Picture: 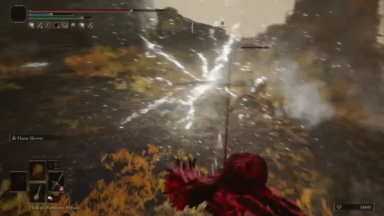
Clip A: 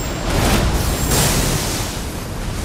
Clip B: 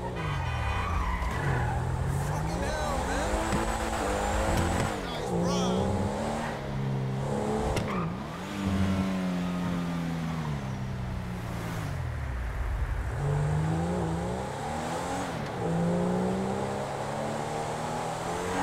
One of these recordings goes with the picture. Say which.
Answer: A